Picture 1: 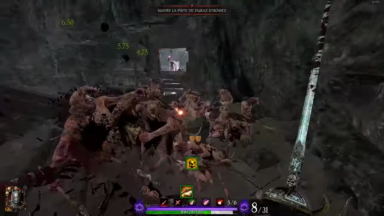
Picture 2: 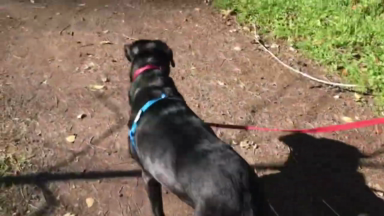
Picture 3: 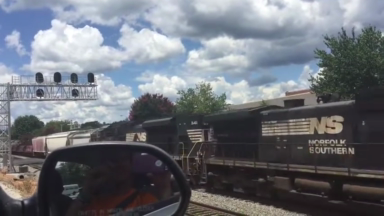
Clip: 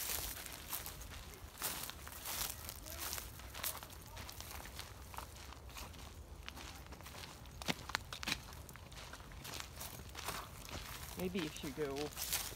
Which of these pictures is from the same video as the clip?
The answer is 2